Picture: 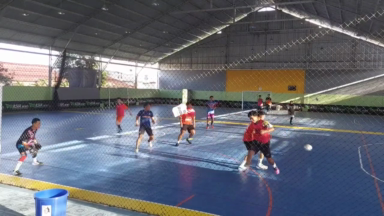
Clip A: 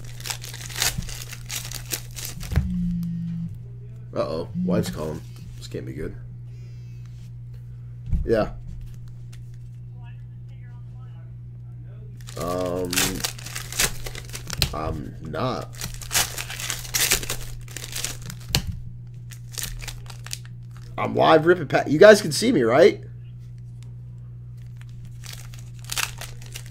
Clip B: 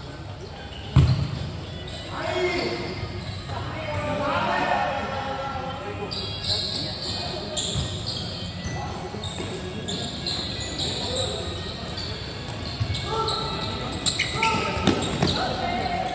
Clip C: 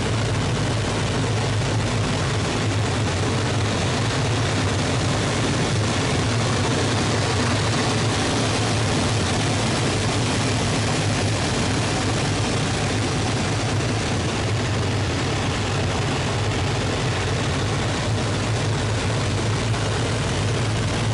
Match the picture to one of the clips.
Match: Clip B